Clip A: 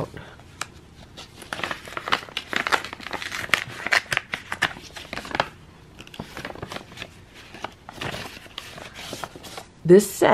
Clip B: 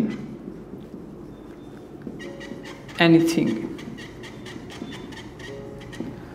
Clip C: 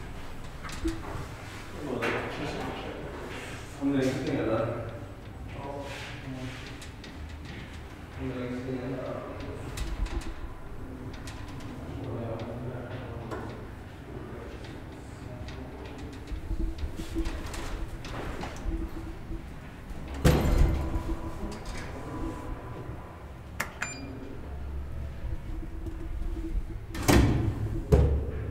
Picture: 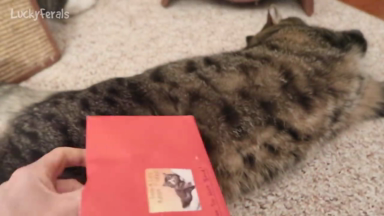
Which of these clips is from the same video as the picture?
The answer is A